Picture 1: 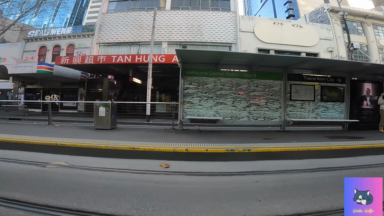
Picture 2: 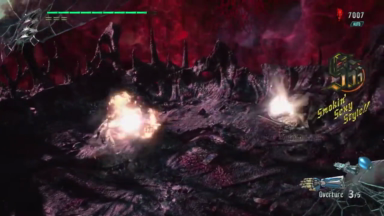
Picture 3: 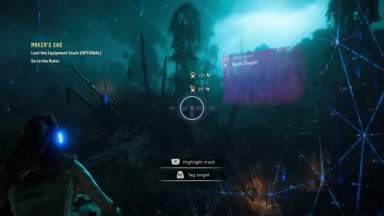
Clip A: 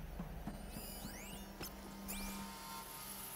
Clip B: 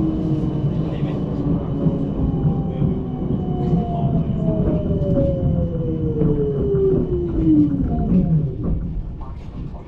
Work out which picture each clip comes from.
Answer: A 3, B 1